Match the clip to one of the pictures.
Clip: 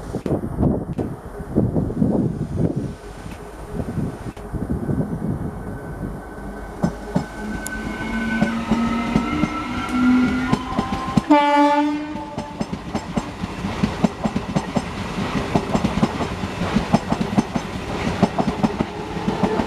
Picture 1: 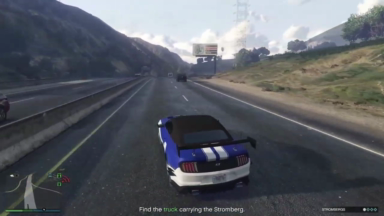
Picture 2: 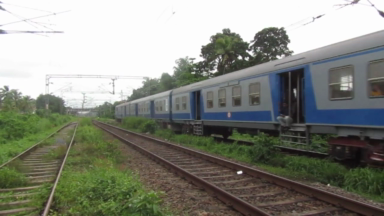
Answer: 2